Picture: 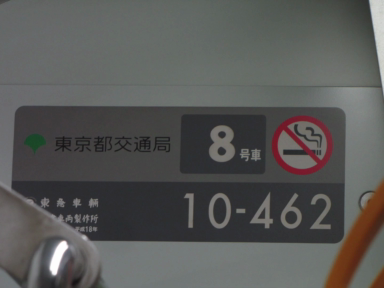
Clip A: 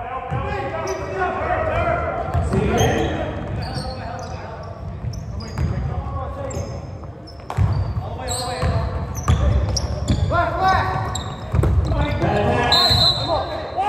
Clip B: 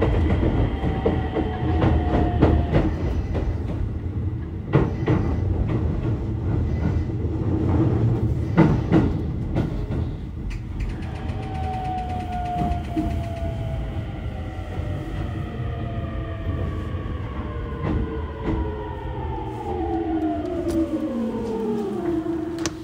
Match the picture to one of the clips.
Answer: B